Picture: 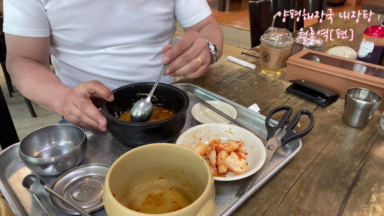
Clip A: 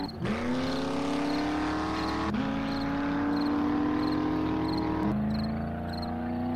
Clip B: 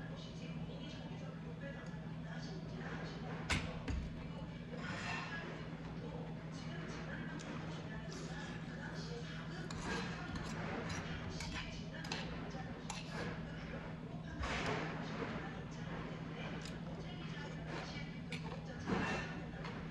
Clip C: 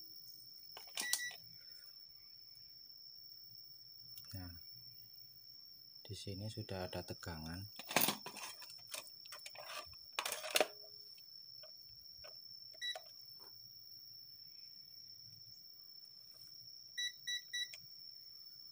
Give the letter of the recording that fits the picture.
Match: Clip B